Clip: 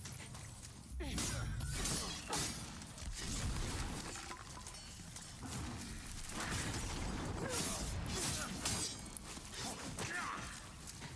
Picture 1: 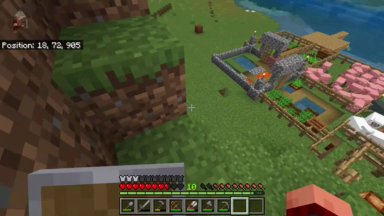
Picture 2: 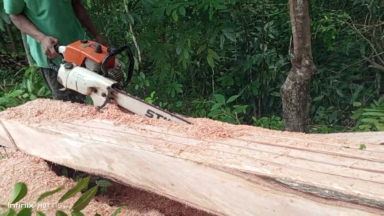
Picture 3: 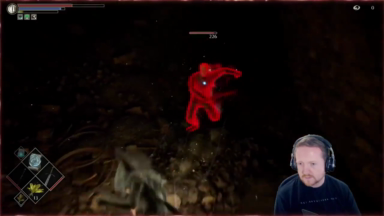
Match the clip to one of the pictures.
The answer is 3